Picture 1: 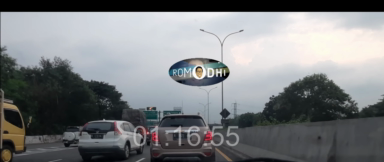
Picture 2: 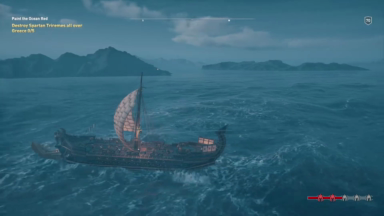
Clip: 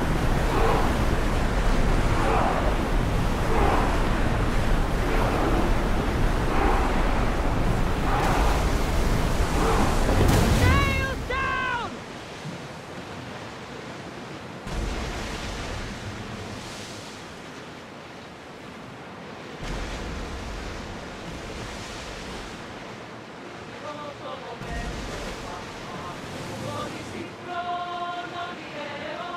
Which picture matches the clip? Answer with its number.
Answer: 2